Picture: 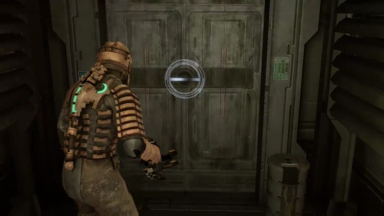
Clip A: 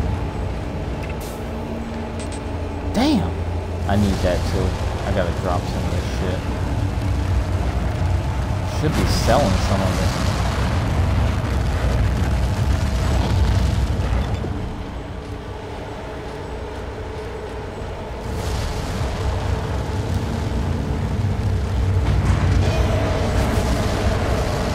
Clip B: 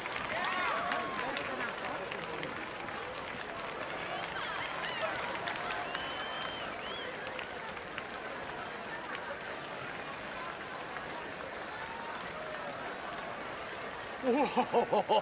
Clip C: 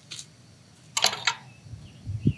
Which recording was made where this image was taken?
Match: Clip A